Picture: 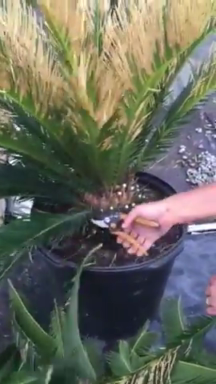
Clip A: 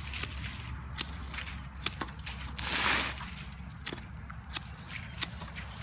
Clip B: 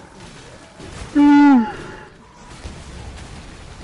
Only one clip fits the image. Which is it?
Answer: A